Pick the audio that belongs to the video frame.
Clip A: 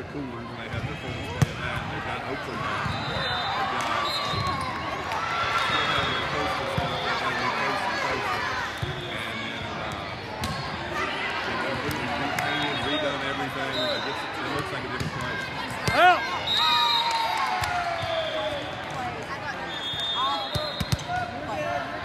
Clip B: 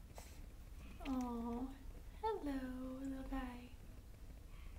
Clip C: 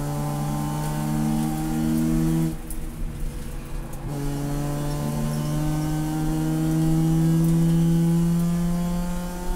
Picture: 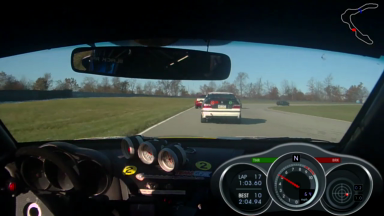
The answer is C